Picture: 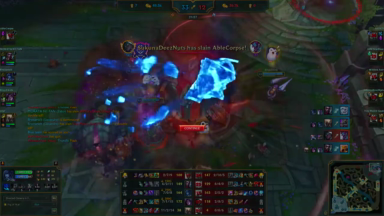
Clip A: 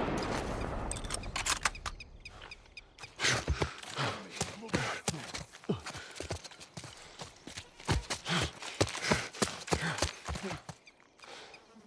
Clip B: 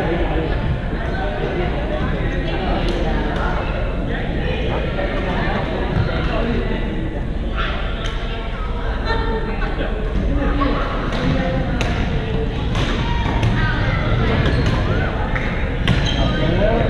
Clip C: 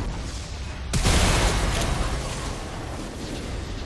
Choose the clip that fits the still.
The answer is C